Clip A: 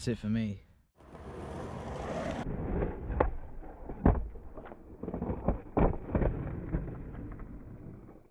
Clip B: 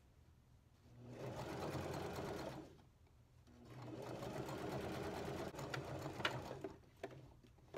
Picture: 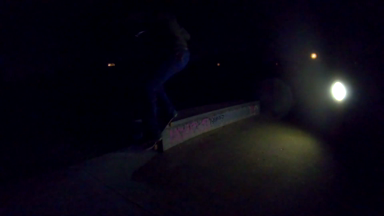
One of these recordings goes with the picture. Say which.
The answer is A